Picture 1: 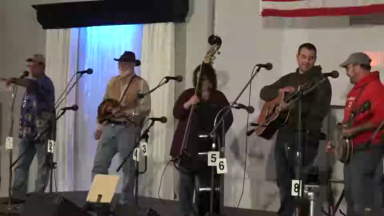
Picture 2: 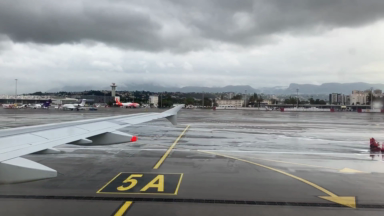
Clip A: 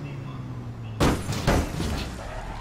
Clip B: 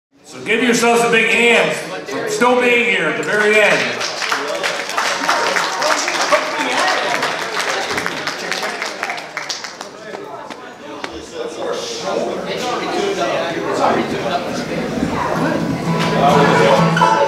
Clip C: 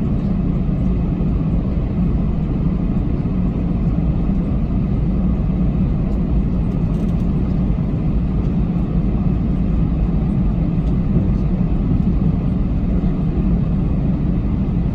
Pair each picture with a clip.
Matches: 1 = B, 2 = C